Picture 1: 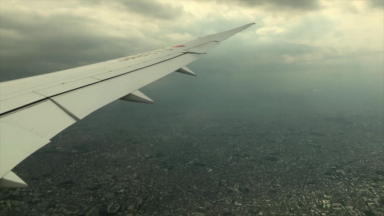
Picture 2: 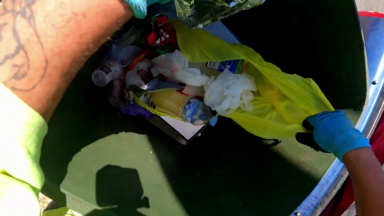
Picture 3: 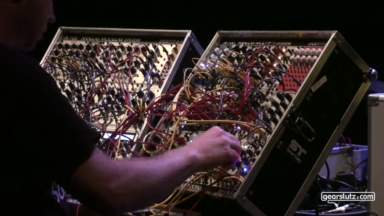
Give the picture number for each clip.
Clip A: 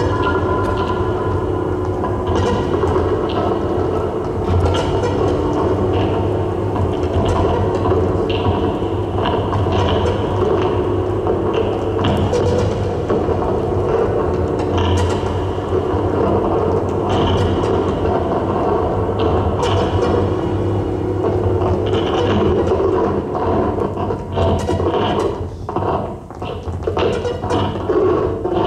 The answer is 3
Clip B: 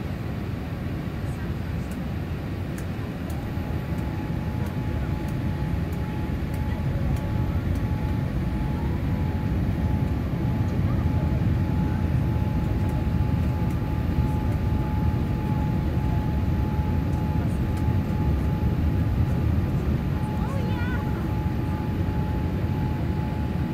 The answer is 1